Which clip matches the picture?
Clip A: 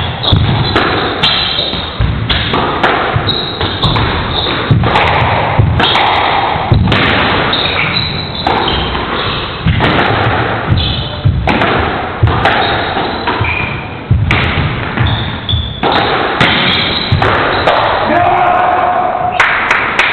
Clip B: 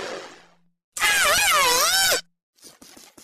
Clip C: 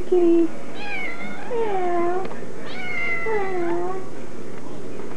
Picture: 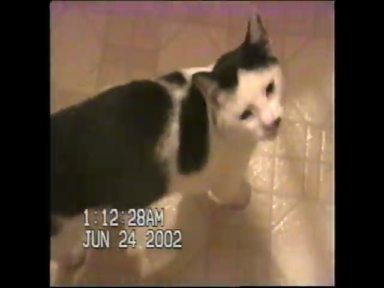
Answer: C